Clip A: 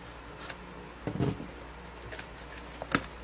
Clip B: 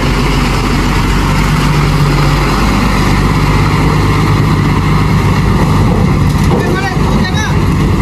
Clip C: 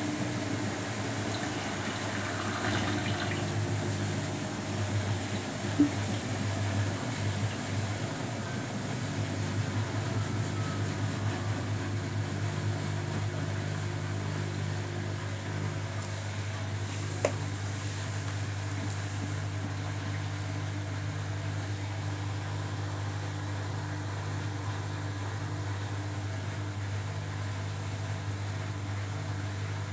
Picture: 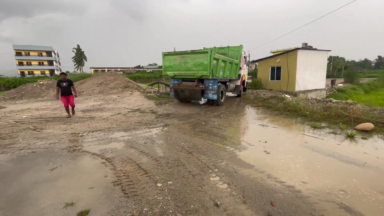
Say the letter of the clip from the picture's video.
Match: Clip B